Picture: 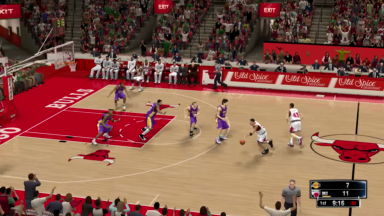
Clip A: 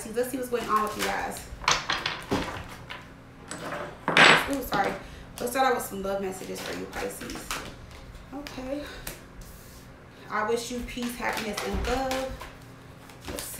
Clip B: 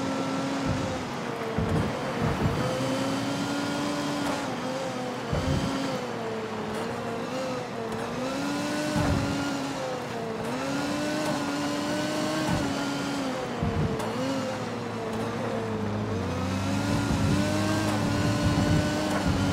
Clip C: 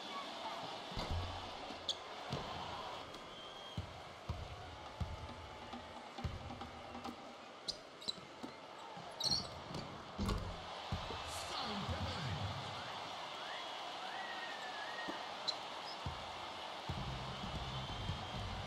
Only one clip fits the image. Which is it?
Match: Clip C